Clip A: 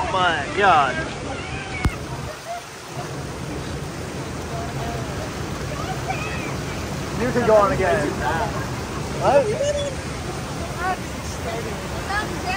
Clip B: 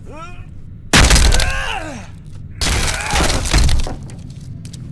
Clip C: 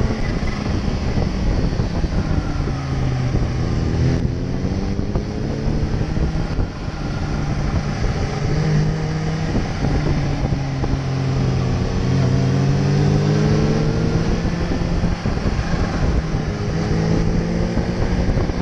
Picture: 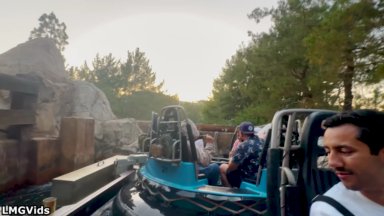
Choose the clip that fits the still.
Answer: A